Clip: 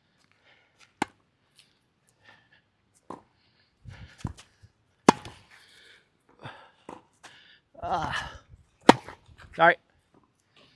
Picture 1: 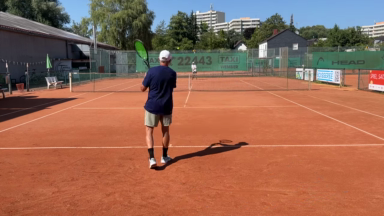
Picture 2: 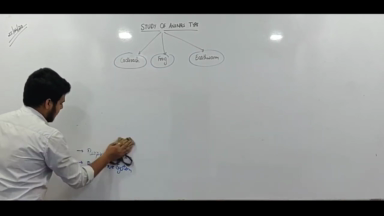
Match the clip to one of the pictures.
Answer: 1